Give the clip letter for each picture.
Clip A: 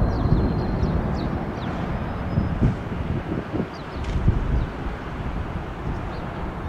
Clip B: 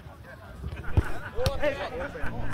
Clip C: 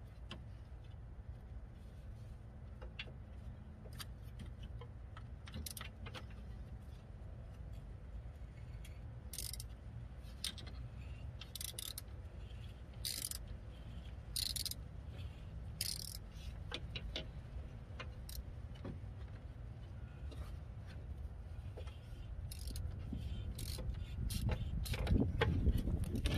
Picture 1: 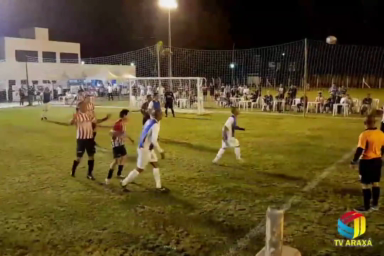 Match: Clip B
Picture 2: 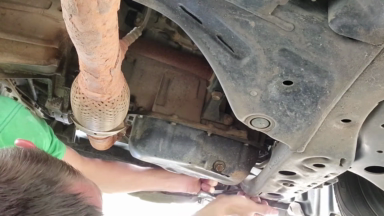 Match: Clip C